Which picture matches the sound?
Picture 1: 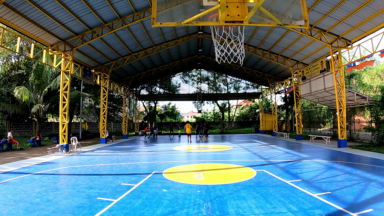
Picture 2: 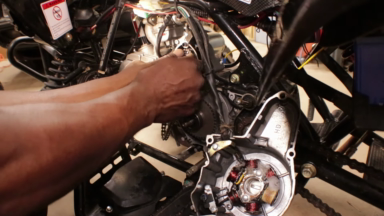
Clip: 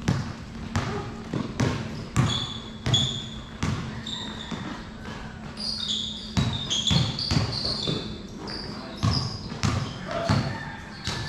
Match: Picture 1